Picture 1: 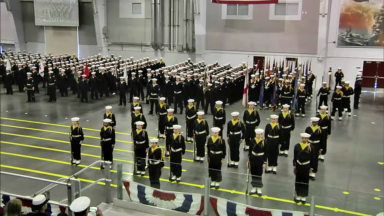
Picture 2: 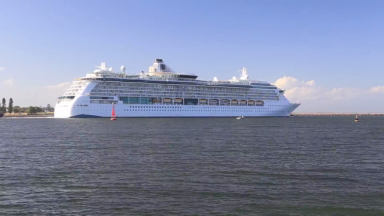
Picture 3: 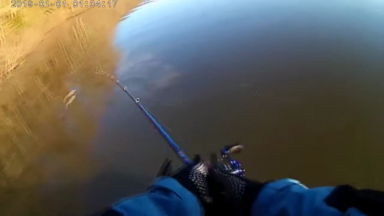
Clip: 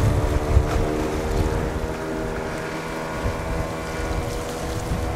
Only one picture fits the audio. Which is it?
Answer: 2